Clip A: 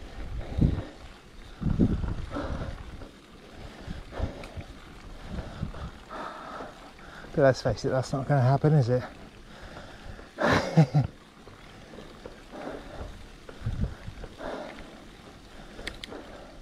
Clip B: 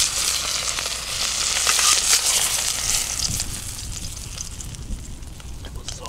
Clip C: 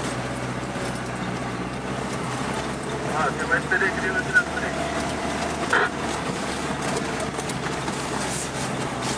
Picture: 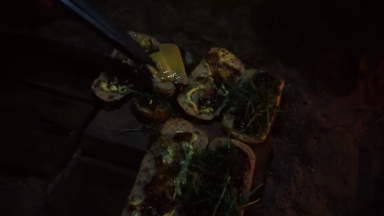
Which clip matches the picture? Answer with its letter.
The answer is B